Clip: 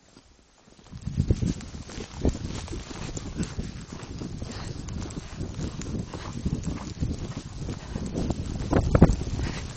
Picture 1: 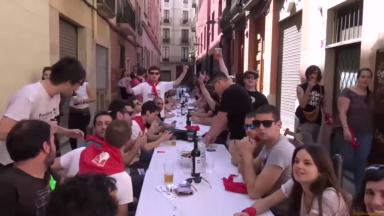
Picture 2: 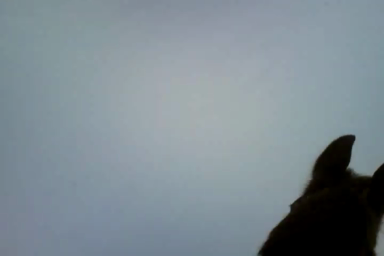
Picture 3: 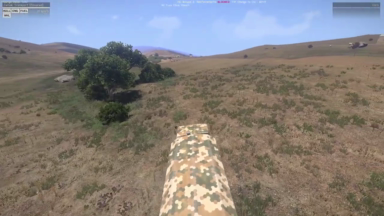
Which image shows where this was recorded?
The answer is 2